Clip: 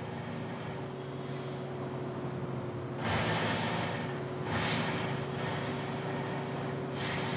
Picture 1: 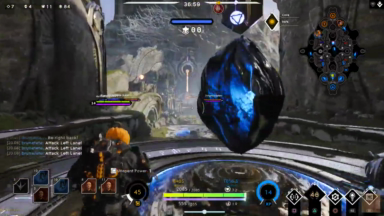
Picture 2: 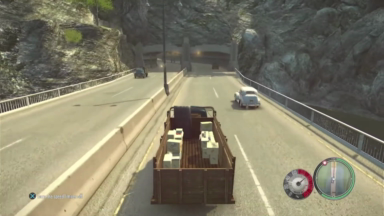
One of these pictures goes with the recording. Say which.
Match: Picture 2